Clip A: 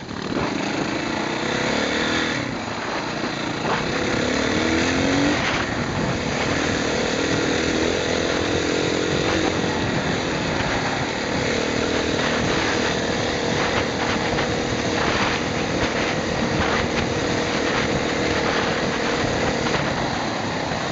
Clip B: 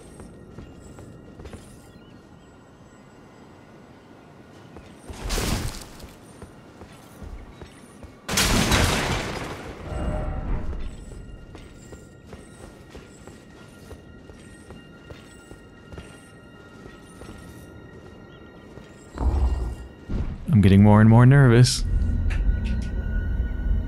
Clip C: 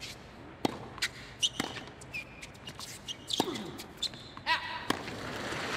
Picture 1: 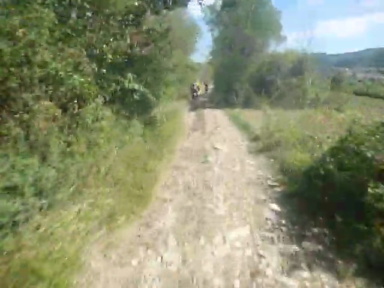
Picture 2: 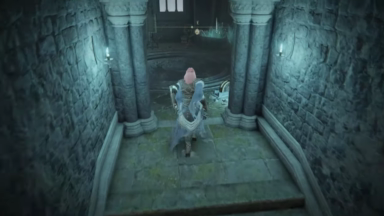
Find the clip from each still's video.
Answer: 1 A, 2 B